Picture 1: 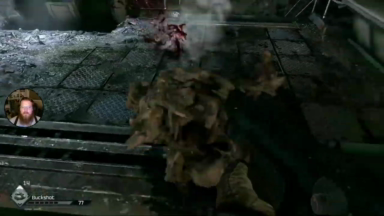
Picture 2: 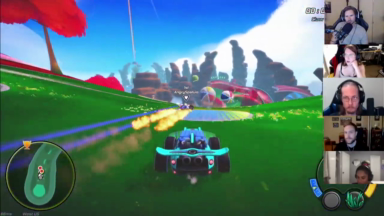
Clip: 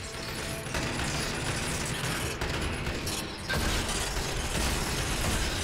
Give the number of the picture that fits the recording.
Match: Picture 1